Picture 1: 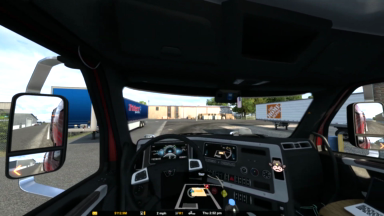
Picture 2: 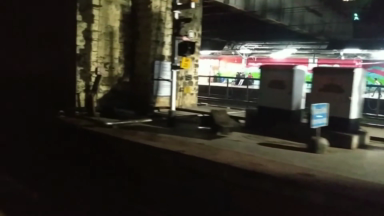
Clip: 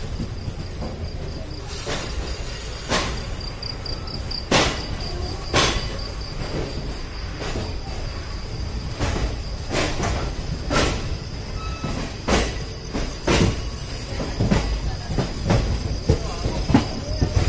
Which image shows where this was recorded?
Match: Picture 2